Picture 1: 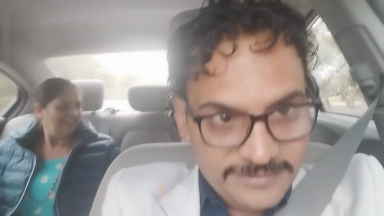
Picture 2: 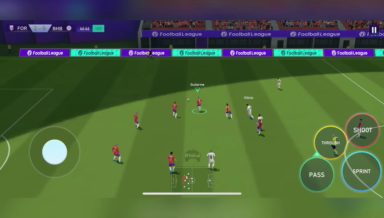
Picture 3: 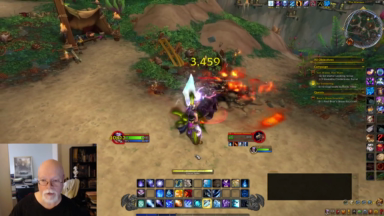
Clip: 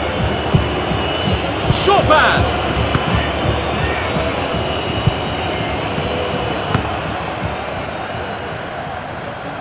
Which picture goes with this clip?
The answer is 2